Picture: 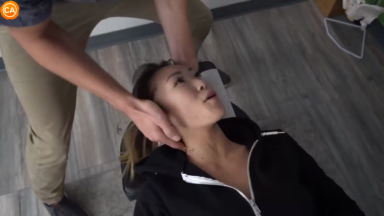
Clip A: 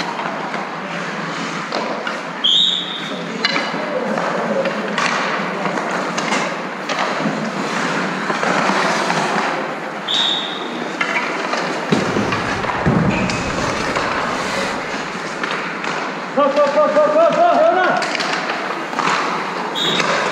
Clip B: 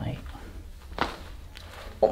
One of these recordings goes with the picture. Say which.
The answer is B